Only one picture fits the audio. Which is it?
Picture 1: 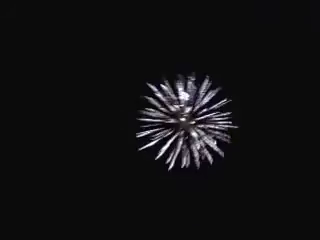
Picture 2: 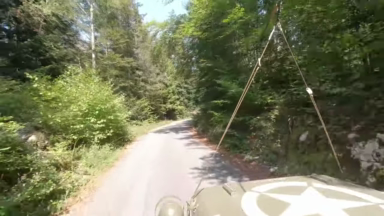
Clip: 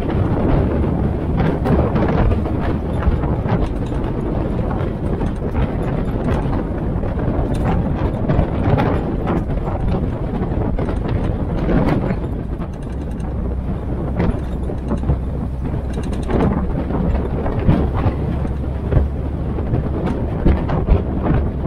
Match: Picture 2